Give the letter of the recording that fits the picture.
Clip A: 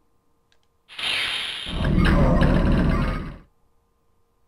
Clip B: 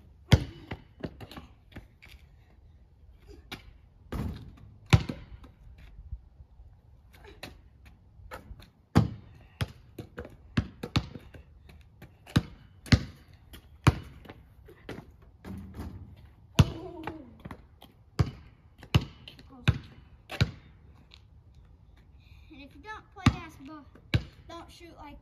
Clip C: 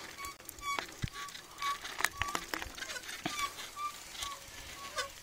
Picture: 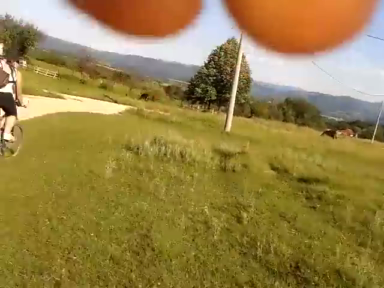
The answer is C